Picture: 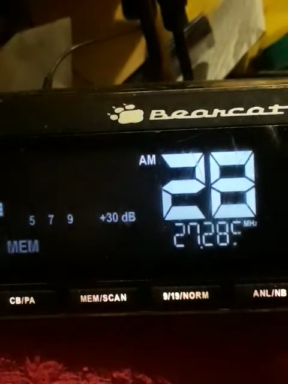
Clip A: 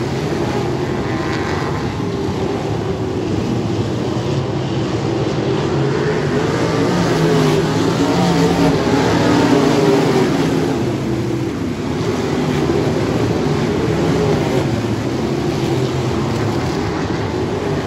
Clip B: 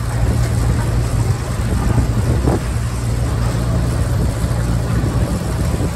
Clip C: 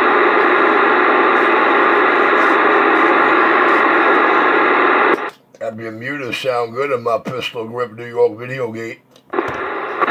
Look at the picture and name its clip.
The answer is C